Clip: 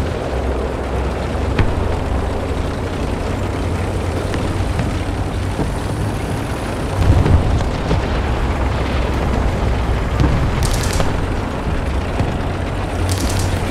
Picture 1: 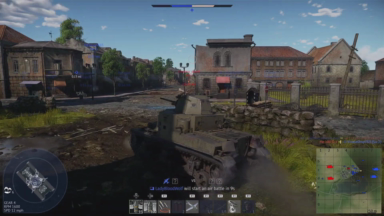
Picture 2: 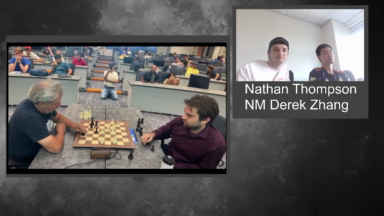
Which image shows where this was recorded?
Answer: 1